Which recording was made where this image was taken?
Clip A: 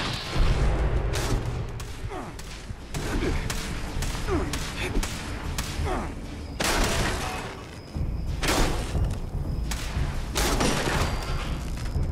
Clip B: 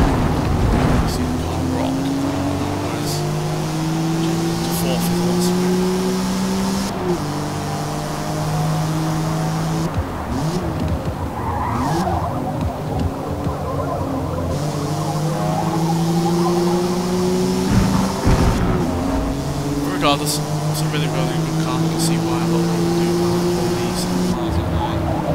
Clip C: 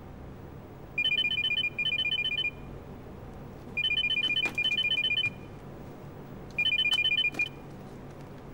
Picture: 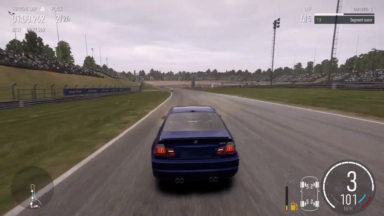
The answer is B